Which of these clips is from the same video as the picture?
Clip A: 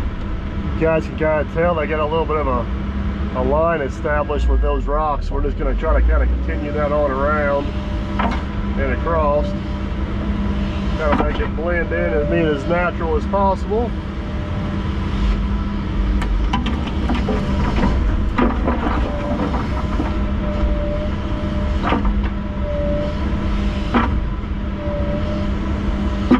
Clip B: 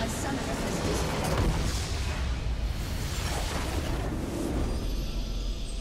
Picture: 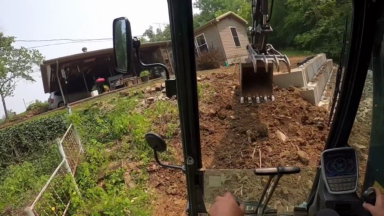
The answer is A